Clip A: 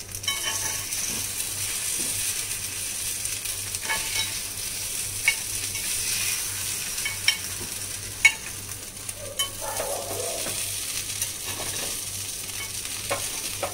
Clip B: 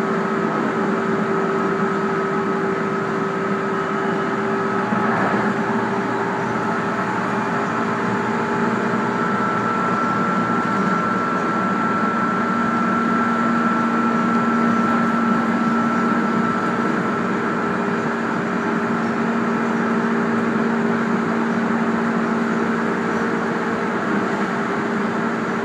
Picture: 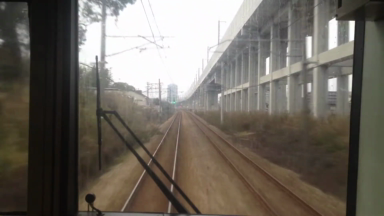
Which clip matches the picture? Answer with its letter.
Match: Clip B